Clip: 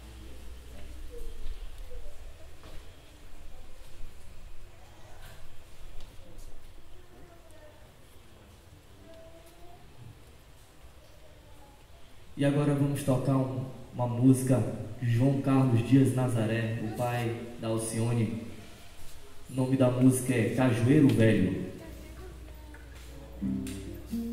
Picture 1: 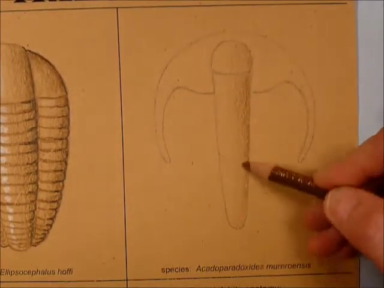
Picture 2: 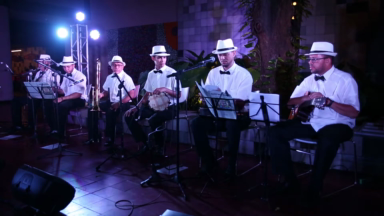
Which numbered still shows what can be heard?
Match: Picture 2